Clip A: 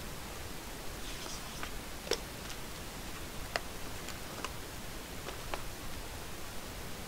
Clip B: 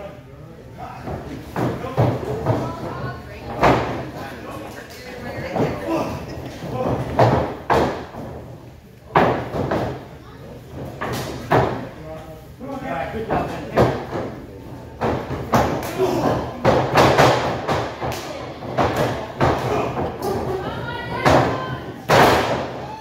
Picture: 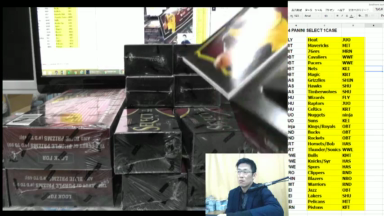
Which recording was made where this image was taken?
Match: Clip A